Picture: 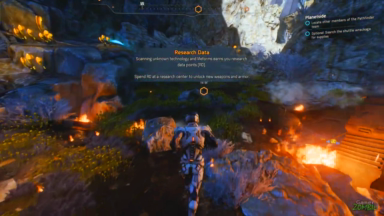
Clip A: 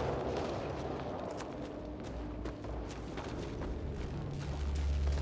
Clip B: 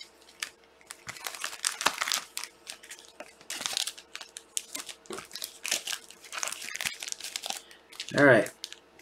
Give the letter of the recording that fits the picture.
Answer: A